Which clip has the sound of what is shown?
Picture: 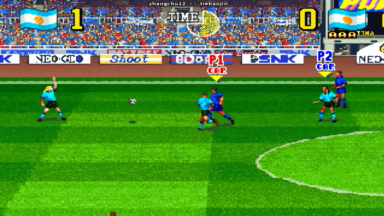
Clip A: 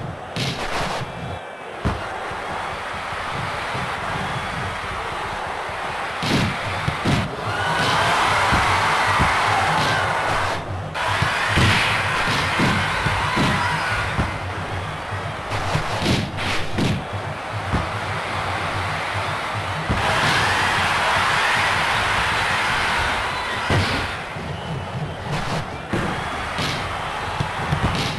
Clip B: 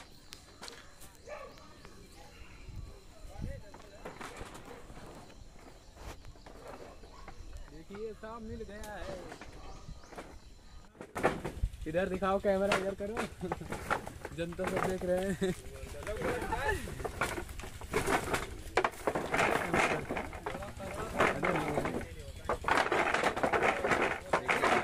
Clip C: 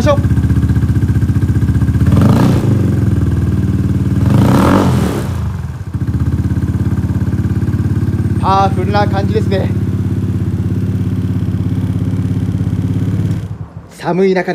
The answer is A